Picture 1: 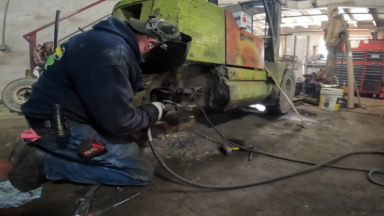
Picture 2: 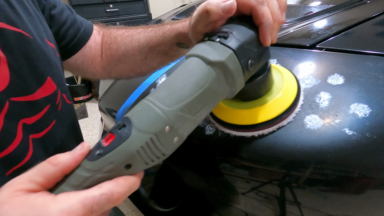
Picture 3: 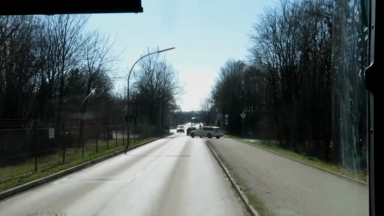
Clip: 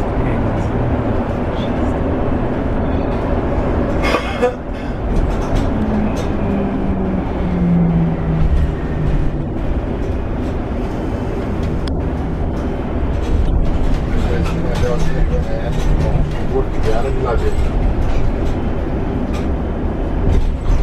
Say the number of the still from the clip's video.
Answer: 3